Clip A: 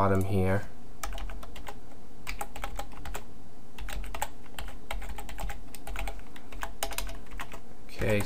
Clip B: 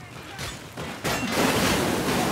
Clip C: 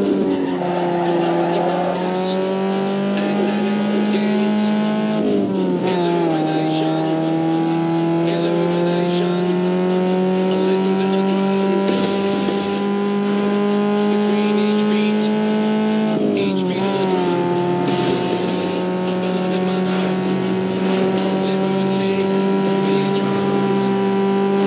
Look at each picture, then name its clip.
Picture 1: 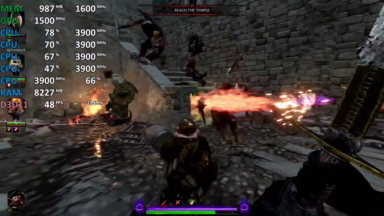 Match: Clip B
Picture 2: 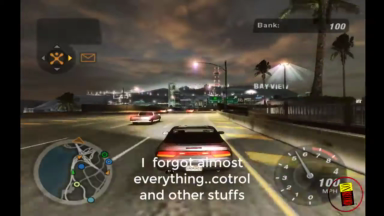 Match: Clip C